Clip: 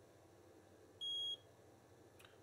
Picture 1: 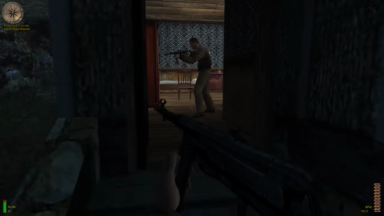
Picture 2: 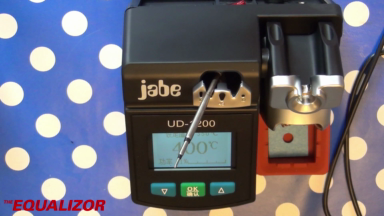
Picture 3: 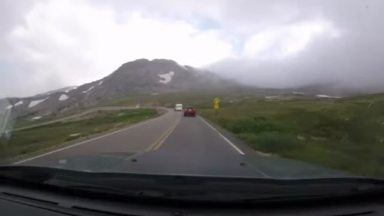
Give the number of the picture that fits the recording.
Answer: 2